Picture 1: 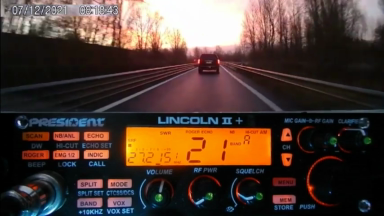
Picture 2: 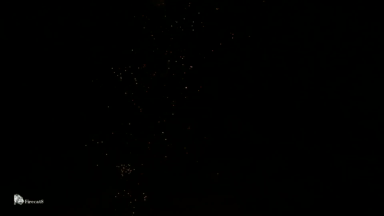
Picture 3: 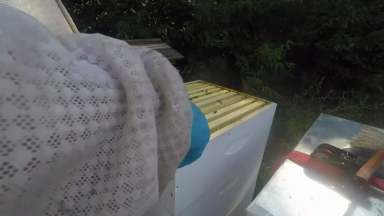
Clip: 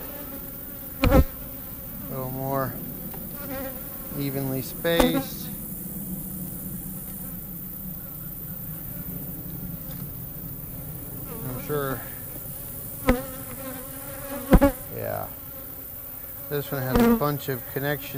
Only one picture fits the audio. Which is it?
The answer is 3